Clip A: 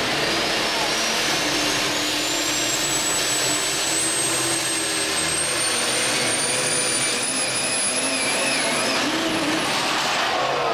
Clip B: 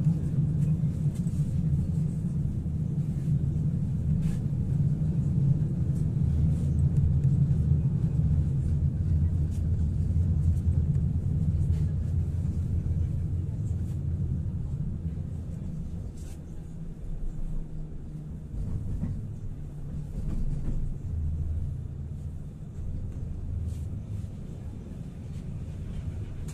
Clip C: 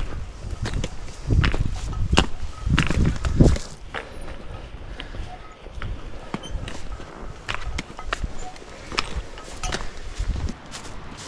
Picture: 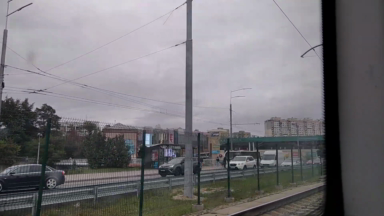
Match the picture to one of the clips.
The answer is B